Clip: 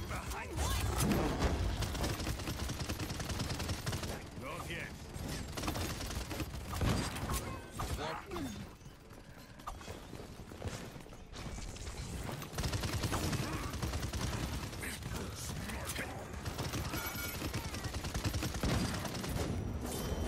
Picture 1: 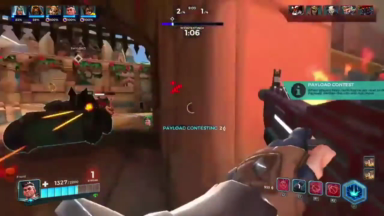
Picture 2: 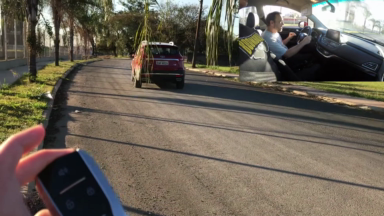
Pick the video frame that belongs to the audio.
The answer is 1